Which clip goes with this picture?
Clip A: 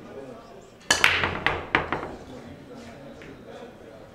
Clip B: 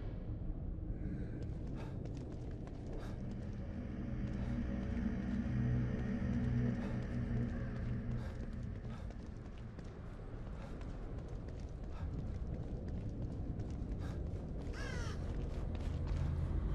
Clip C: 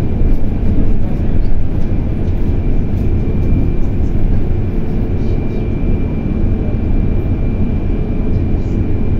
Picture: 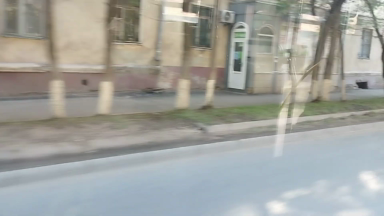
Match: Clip C